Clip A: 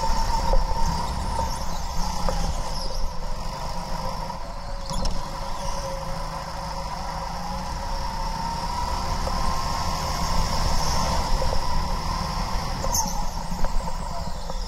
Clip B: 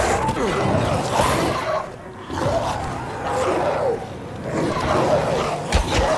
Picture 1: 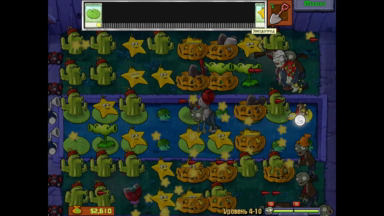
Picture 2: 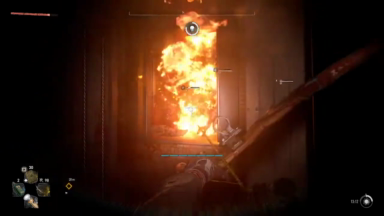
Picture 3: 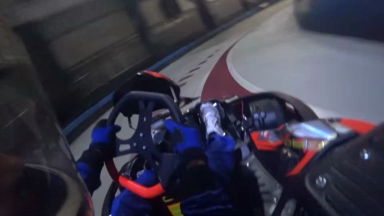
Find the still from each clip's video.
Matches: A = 3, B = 2